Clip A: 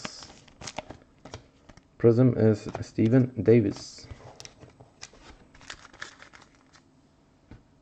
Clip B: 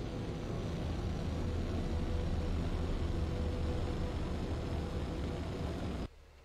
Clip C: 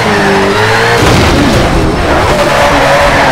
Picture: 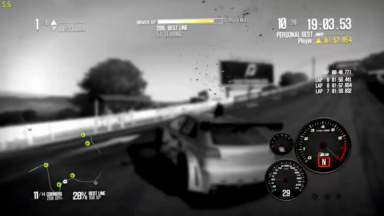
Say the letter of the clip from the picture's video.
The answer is C